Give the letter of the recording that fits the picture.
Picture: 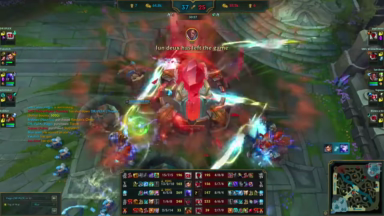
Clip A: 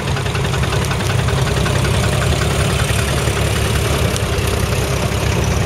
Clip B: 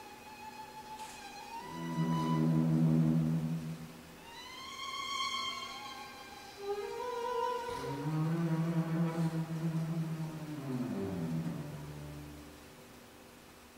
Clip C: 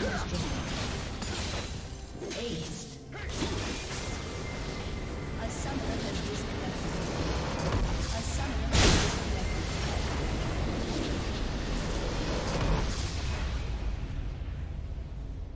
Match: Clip C